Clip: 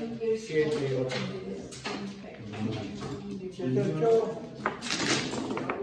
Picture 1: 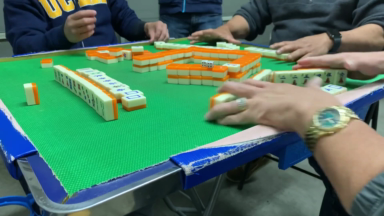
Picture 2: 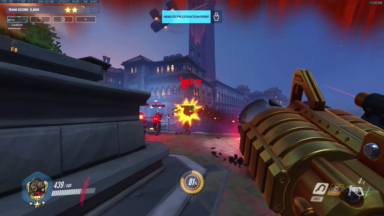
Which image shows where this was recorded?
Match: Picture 1